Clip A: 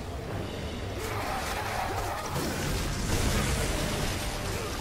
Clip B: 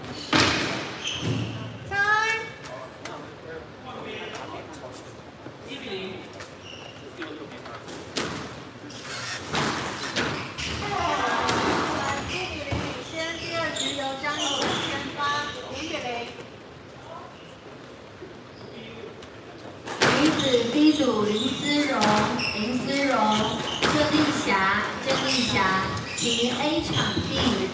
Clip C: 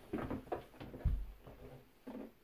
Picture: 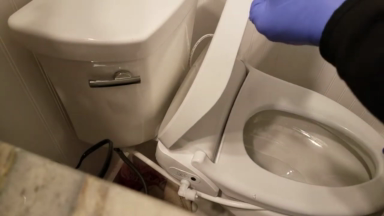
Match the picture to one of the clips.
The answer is C